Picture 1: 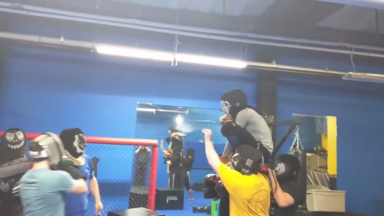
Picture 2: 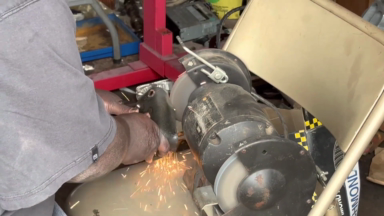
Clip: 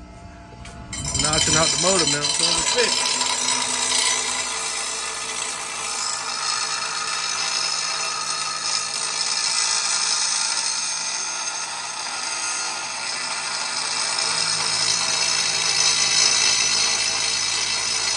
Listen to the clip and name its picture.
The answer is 2